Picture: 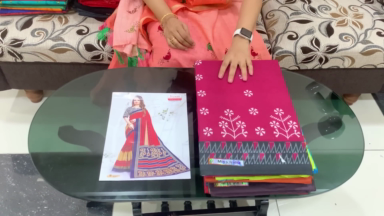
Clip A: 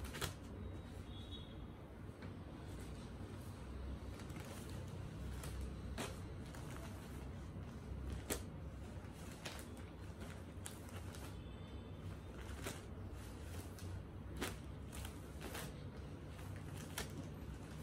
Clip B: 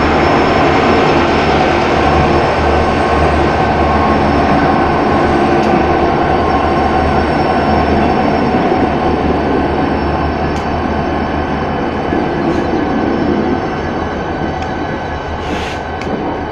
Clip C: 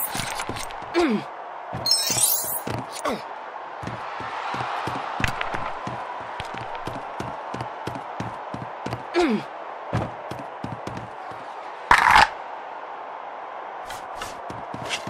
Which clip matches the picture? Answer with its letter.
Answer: A